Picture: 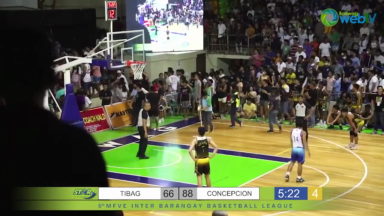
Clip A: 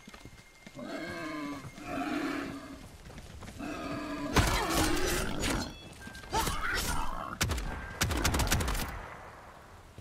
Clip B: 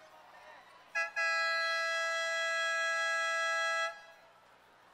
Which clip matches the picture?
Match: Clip B